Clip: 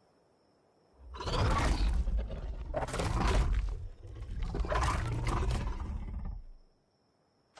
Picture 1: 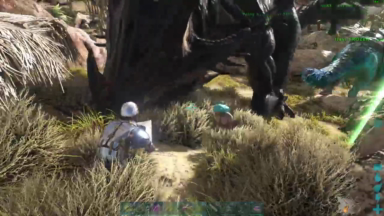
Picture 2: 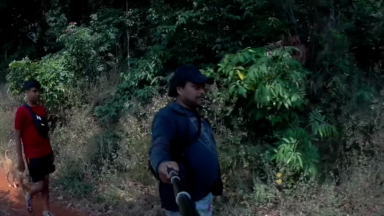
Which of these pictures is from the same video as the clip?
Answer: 1